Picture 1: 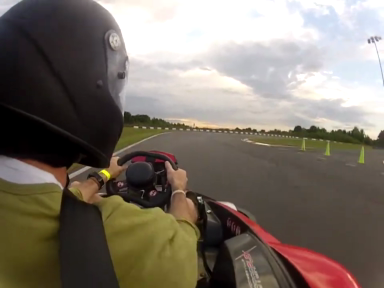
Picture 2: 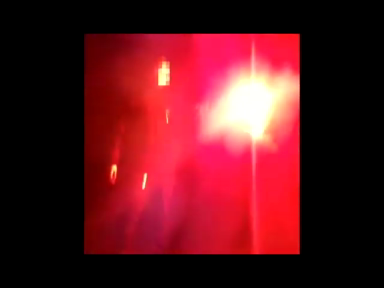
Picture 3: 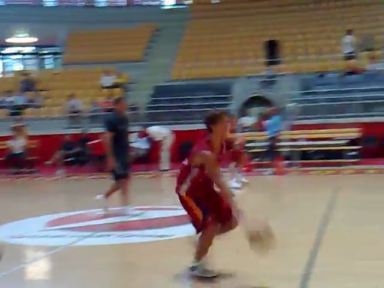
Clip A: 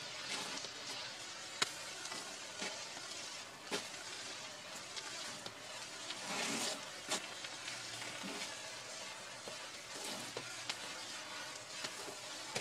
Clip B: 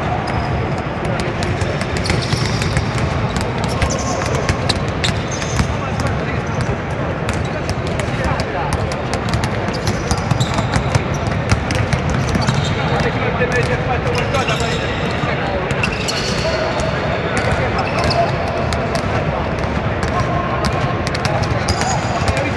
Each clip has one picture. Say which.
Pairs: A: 2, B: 3